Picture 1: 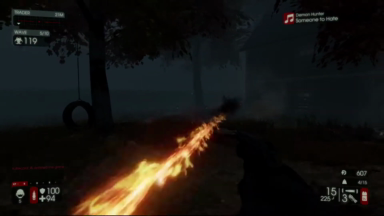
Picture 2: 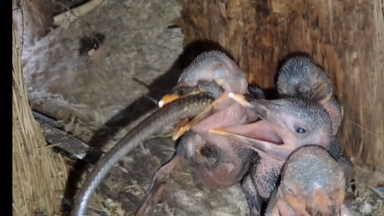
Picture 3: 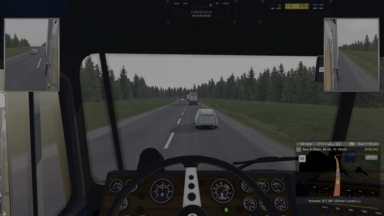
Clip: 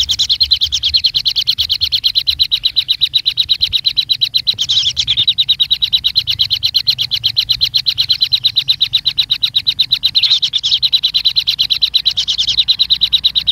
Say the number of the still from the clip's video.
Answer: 2